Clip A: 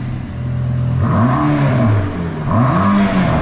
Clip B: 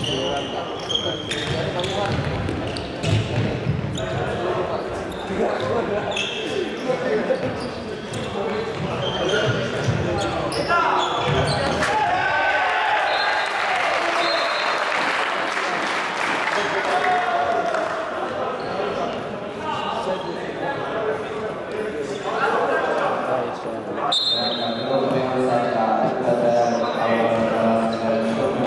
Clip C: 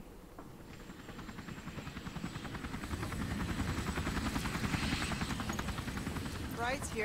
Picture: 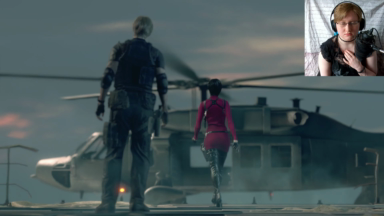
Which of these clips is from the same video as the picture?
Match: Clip C